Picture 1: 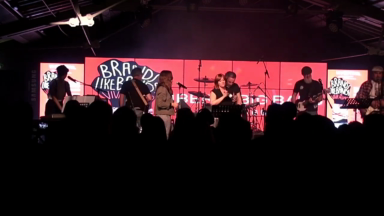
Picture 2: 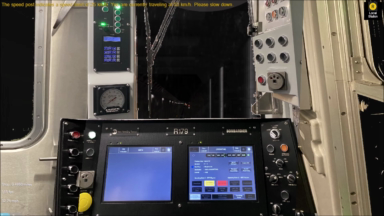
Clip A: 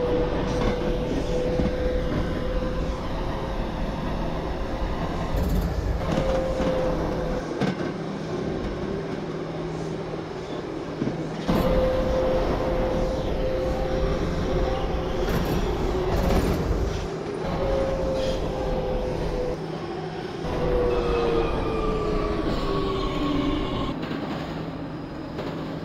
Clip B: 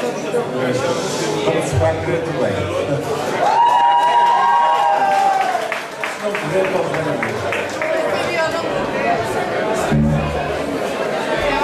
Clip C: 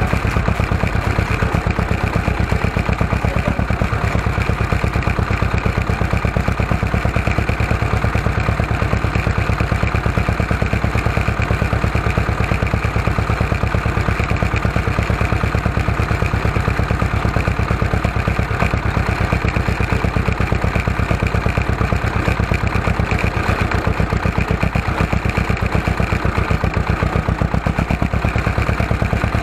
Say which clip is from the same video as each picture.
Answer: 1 B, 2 A